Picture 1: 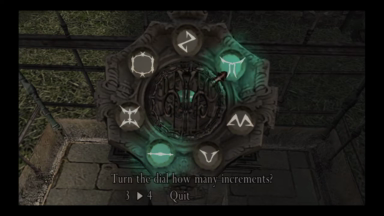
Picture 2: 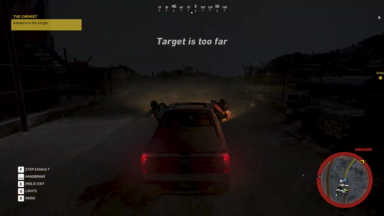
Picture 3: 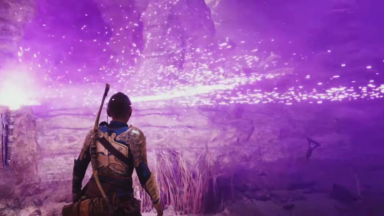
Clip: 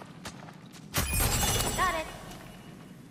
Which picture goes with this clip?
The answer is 3